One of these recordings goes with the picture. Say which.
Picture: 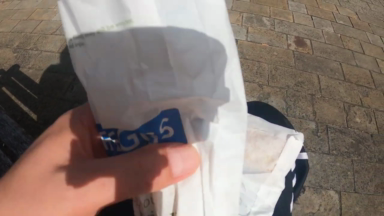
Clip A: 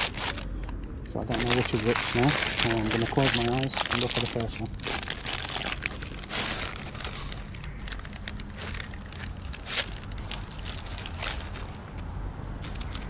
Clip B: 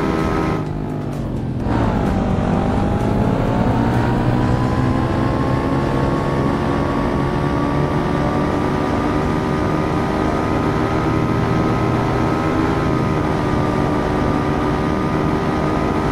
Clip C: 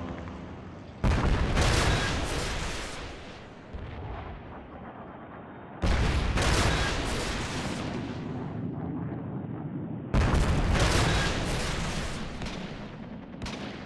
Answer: A